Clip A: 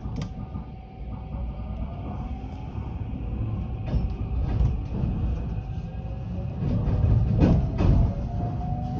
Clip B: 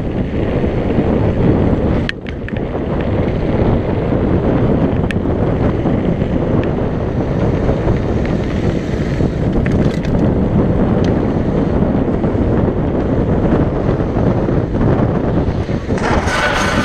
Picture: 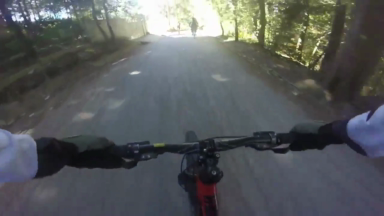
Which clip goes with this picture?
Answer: B